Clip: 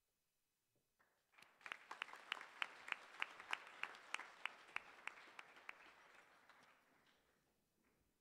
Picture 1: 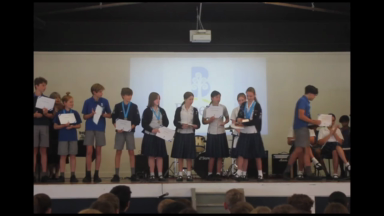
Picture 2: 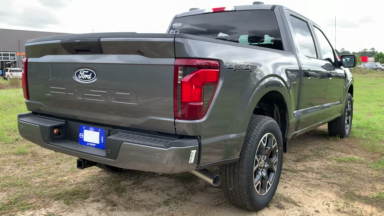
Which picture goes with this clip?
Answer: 1